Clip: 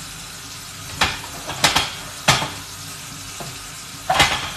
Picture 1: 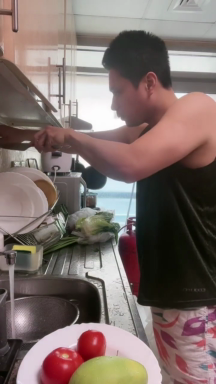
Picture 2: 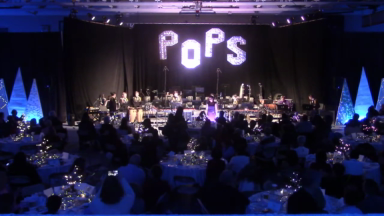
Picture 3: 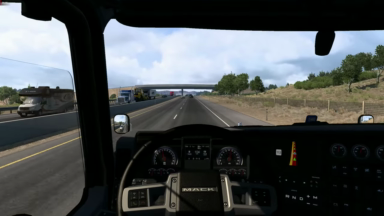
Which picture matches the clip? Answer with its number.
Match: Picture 1